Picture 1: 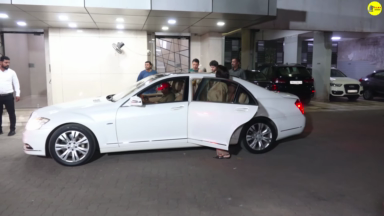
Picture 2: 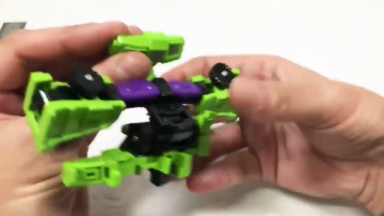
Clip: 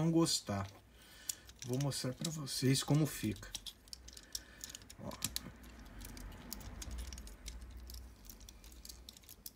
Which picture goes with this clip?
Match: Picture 2